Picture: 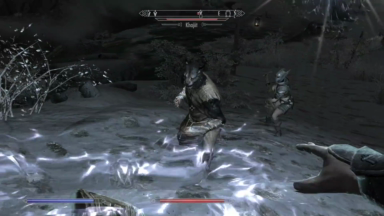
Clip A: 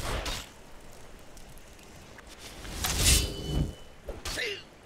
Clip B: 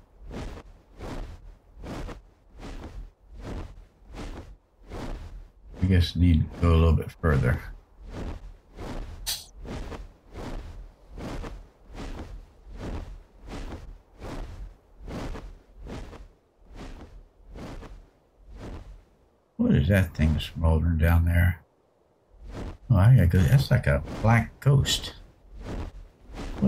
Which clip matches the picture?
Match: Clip A